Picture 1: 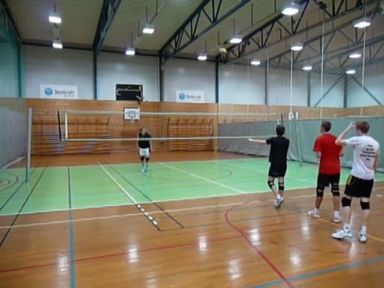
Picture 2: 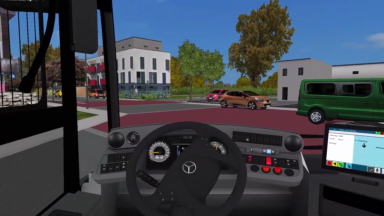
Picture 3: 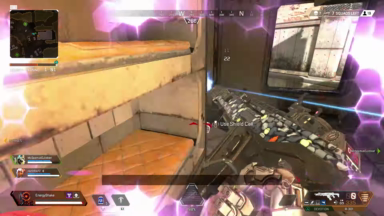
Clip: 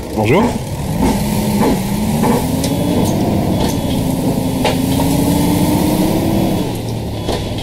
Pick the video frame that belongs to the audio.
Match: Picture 2